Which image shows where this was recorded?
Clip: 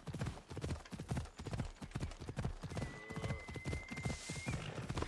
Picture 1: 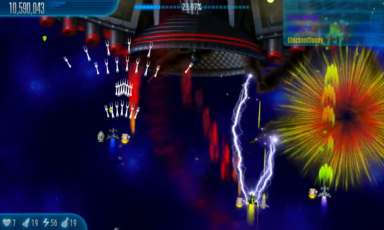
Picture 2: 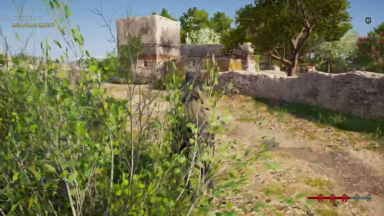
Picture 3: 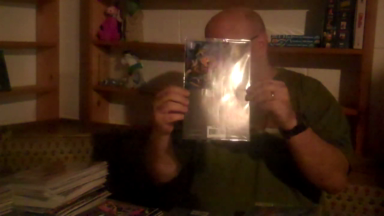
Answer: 2